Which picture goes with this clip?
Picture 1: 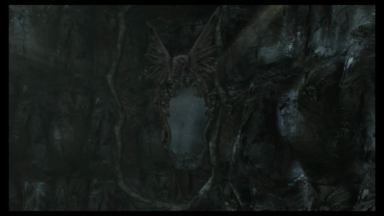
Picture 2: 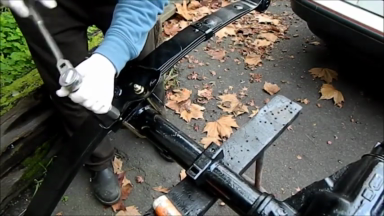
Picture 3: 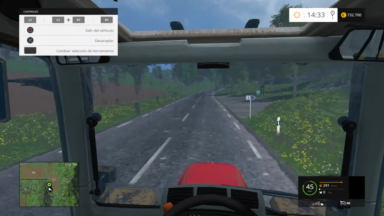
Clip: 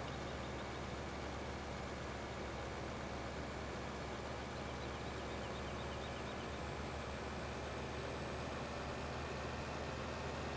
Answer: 3